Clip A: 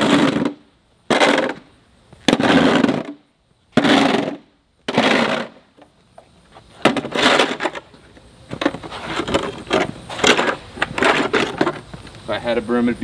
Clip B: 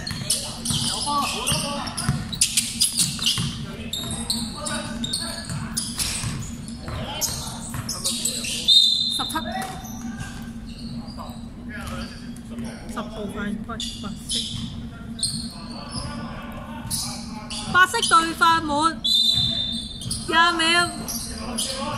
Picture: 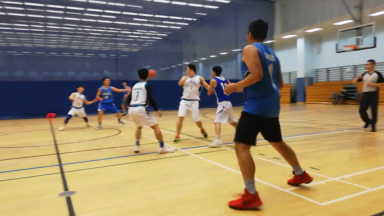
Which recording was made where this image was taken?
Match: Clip B